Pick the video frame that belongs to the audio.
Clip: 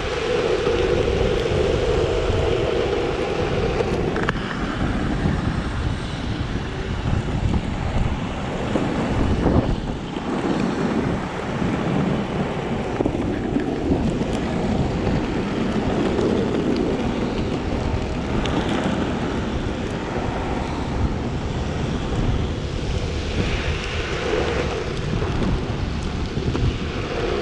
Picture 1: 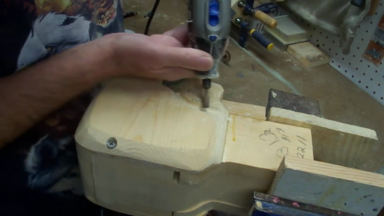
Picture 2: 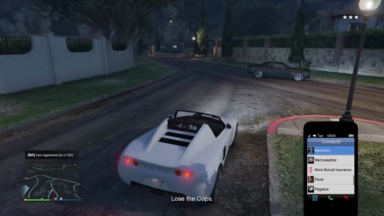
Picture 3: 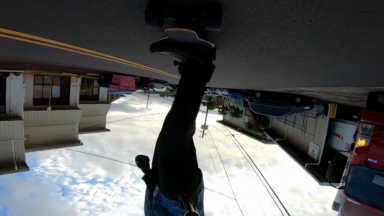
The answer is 3